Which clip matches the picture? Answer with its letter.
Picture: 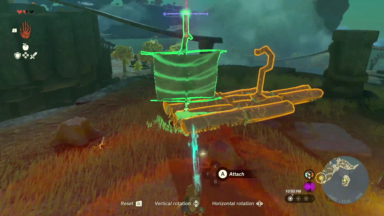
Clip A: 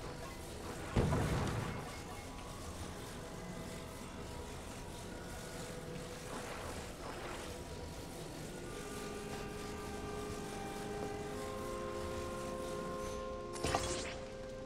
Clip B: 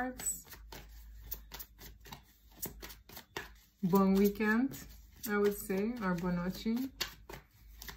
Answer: A